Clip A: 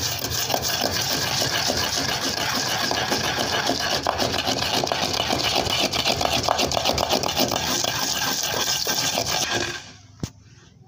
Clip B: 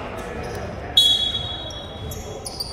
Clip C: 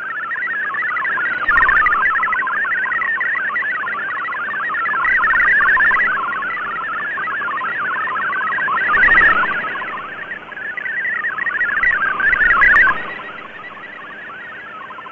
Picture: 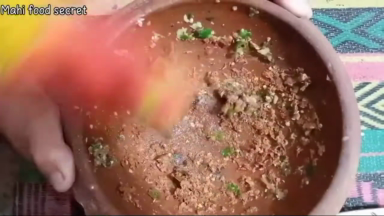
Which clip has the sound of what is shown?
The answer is A